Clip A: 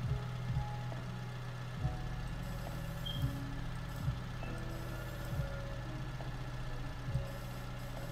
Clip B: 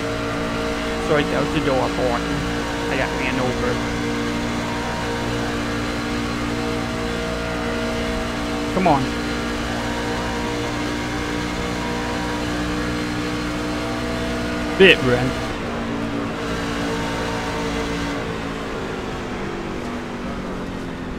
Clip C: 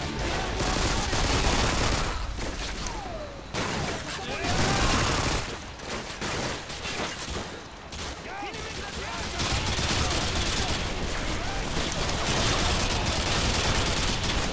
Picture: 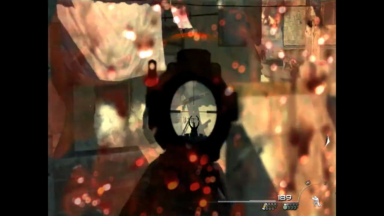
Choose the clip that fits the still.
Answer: C